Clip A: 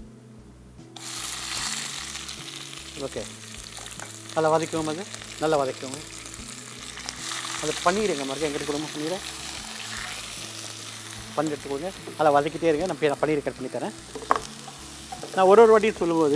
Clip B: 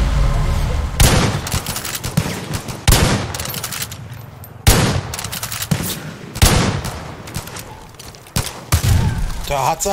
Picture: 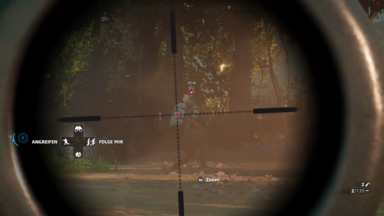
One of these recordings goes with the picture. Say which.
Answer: B